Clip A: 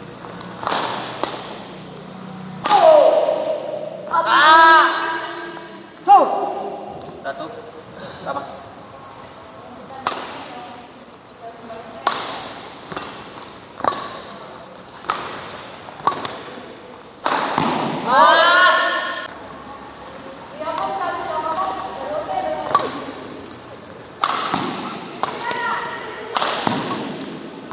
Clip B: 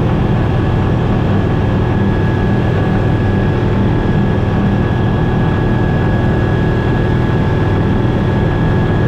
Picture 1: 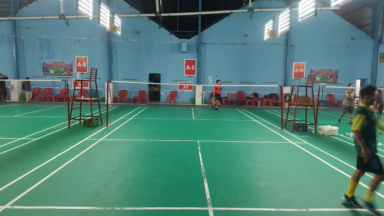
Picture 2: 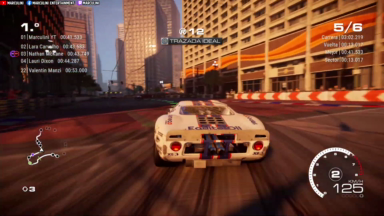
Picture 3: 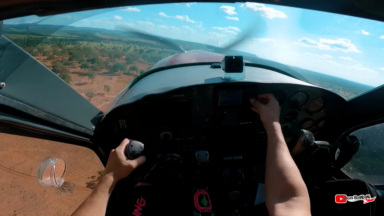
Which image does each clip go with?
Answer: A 1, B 3